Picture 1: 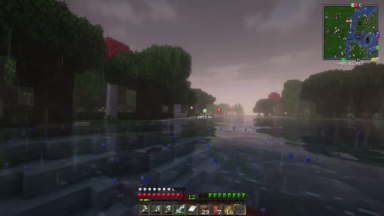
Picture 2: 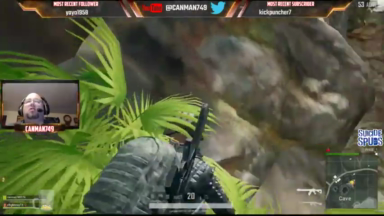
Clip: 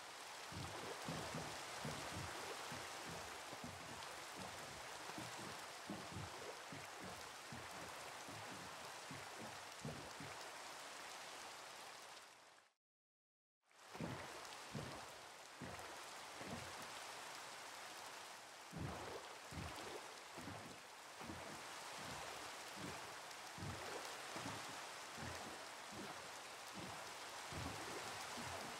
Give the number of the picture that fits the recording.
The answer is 1